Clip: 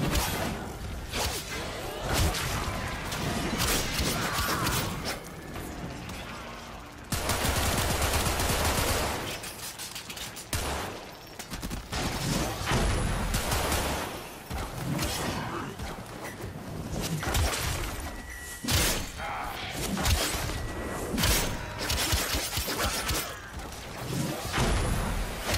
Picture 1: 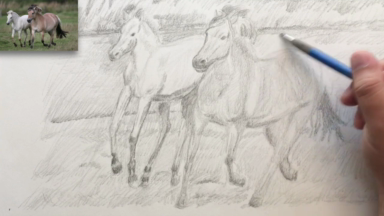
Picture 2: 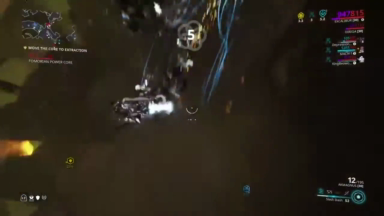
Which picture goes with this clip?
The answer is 2